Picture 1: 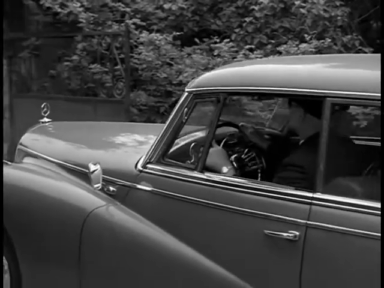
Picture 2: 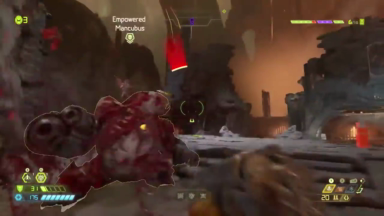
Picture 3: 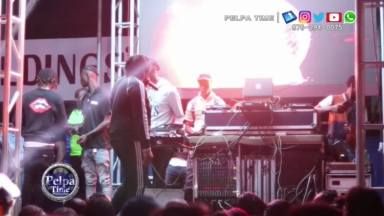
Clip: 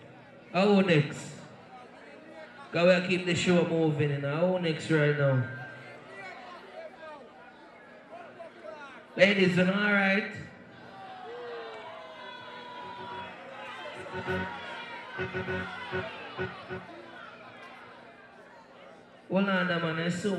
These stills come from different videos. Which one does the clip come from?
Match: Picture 3